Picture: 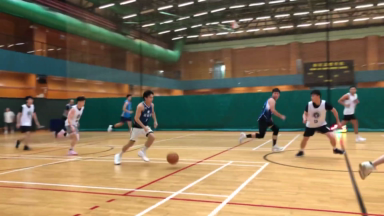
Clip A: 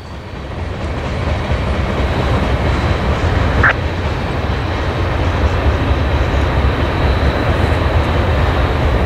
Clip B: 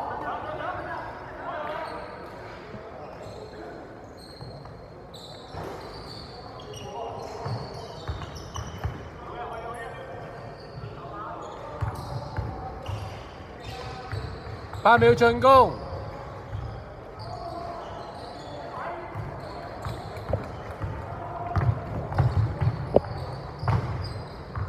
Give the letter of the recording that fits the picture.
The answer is B